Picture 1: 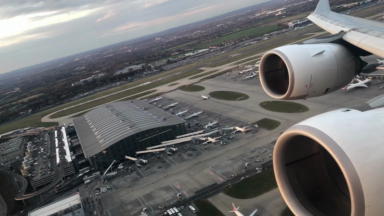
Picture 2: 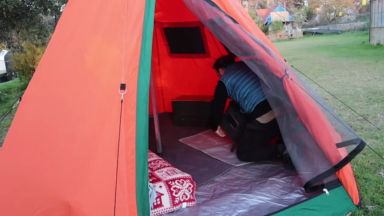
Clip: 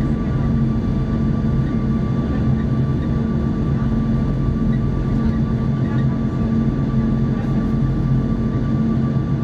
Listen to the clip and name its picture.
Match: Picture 1